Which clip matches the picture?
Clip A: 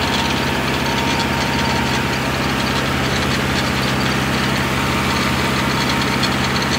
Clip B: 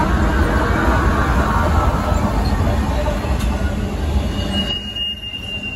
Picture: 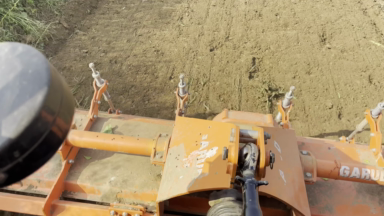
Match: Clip A